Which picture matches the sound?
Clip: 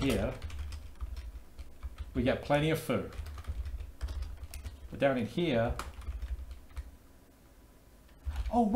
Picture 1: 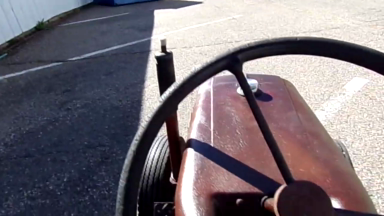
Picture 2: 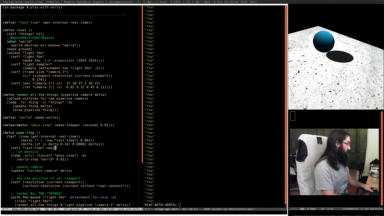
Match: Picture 2